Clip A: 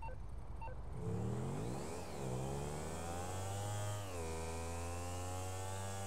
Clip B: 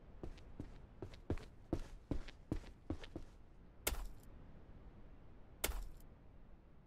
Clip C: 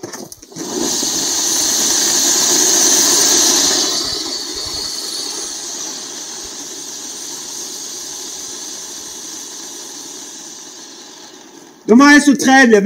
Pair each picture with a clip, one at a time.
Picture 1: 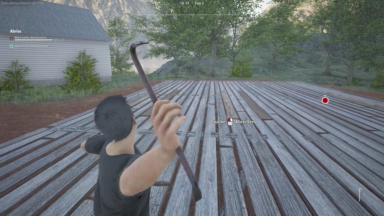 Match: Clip B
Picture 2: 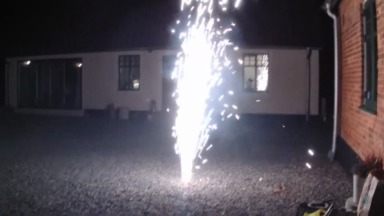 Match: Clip C